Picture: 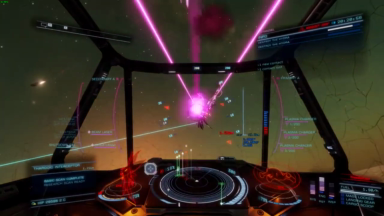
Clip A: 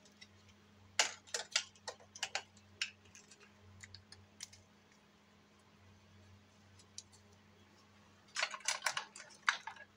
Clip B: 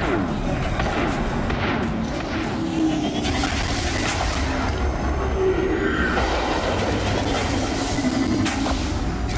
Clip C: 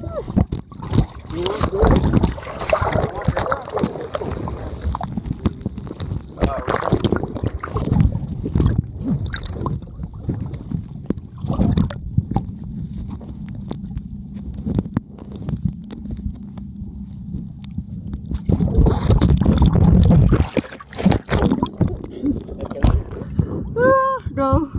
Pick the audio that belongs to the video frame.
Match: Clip B